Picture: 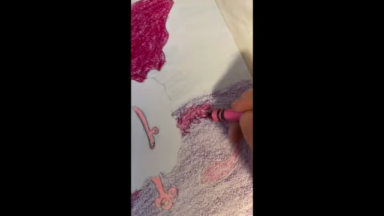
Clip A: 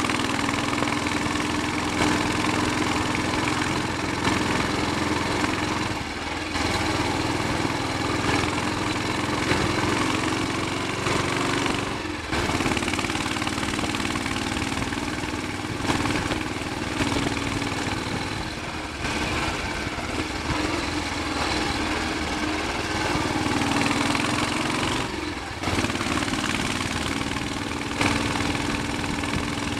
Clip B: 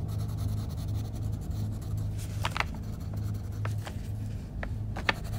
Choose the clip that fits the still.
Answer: B